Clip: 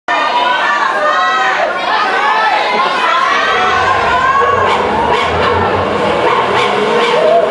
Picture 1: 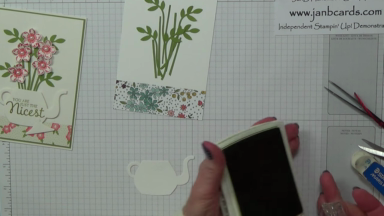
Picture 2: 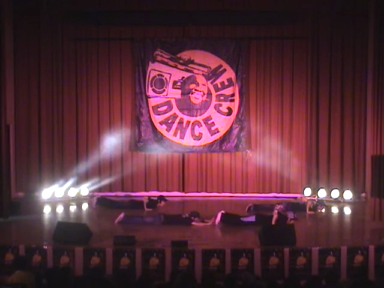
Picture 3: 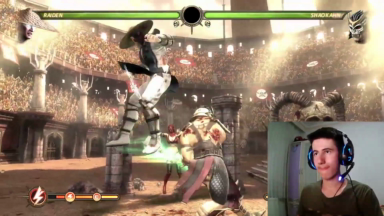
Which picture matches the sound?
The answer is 2